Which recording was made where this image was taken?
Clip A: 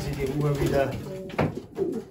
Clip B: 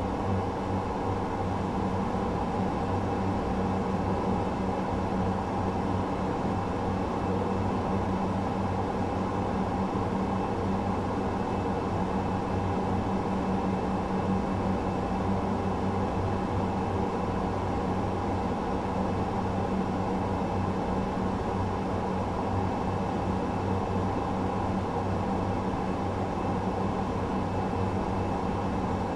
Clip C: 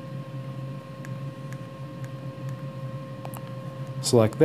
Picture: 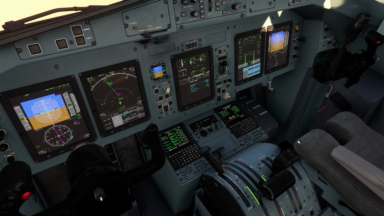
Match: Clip B